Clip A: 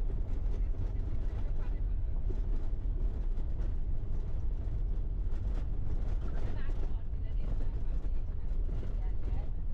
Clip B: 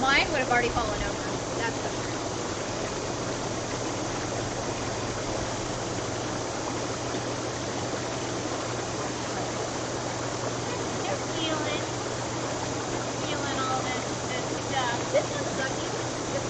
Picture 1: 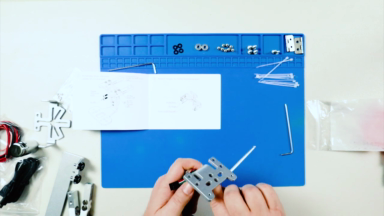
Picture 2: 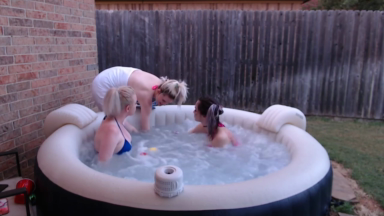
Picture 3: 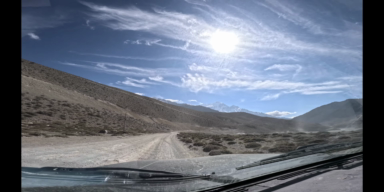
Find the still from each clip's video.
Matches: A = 3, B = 2